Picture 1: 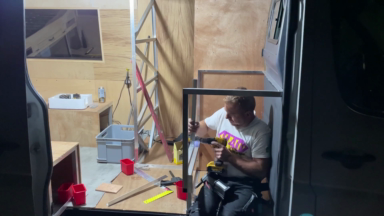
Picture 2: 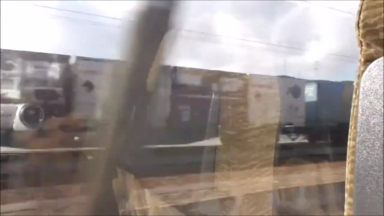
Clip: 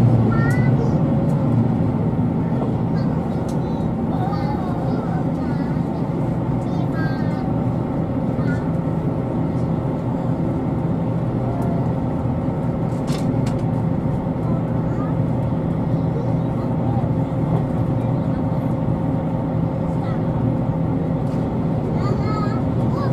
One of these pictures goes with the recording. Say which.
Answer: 2